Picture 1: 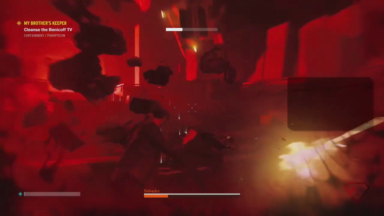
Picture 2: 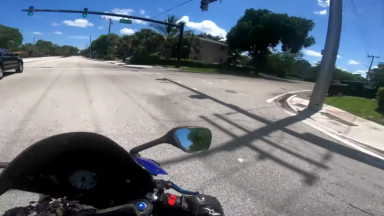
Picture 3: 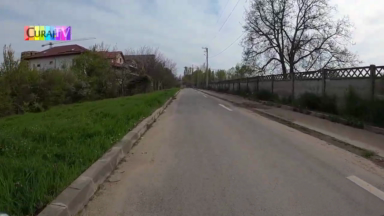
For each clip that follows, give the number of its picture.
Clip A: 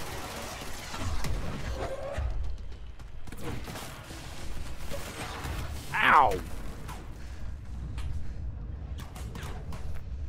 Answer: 1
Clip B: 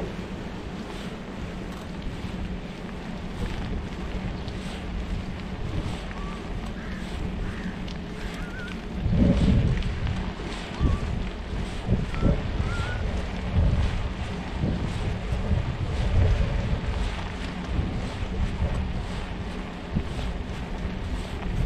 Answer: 3